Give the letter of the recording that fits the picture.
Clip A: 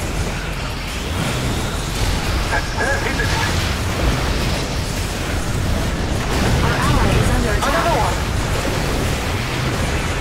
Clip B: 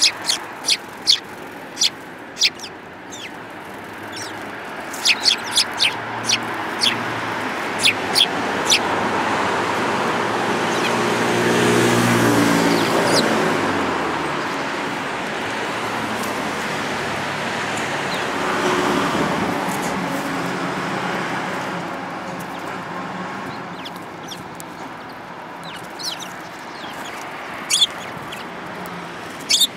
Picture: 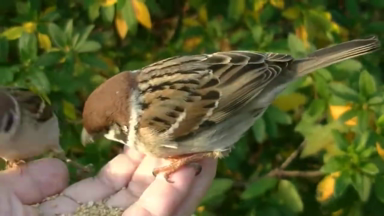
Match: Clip B